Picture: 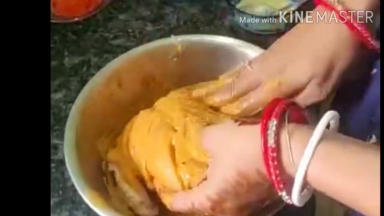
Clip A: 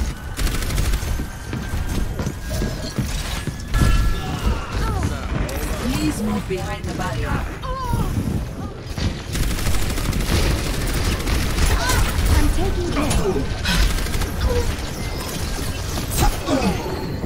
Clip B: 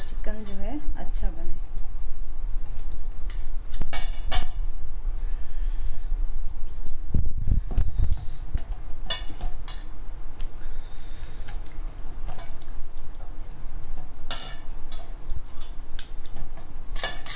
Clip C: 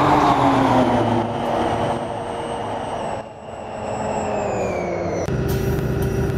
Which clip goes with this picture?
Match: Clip B